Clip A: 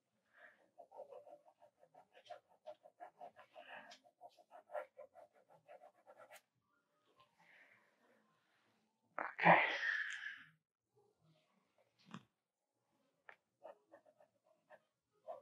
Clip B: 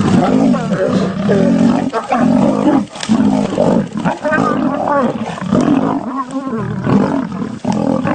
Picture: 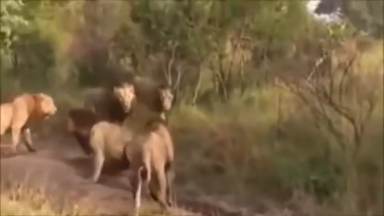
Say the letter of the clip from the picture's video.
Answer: B